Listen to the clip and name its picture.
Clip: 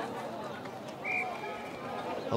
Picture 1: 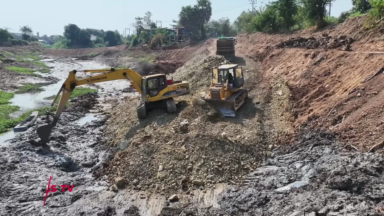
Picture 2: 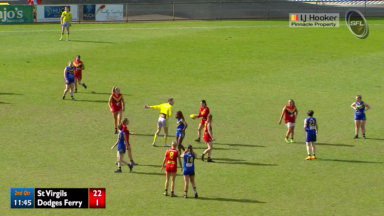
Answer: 2